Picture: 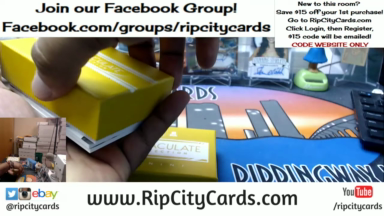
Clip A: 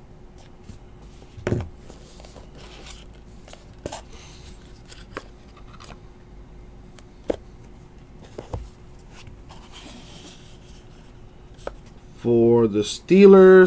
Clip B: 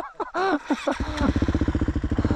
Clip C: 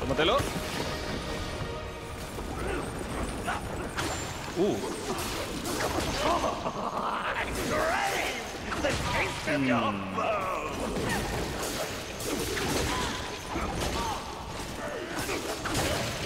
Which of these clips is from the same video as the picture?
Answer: A